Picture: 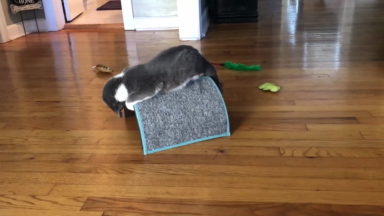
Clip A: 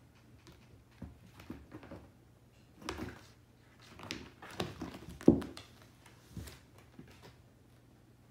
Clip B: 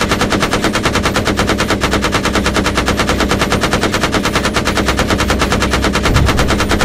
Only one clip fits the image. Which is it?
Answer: A